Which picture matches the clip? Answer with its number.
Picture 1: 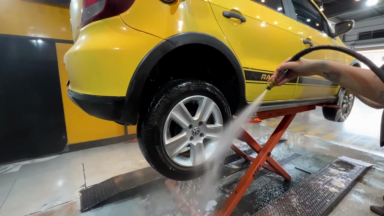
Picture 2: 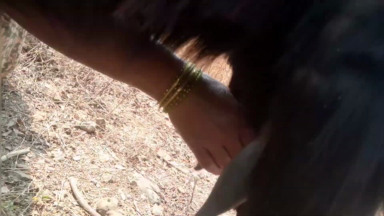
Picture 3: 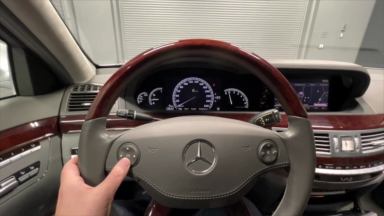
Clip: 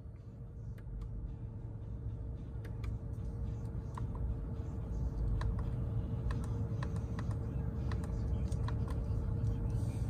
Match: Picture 3